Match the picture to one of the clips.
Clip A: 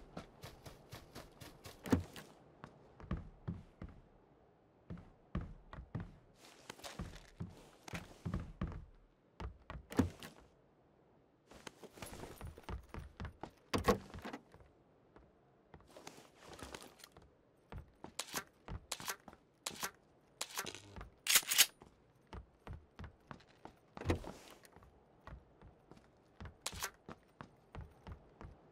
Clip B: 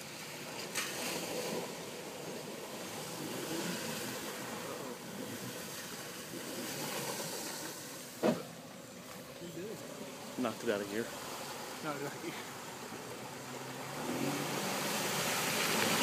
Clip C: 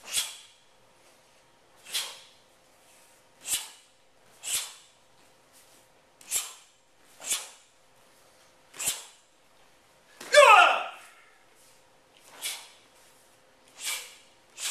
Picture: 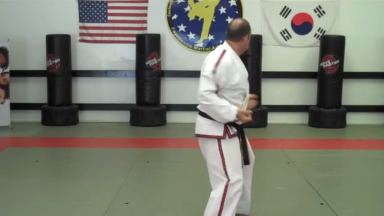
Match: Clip C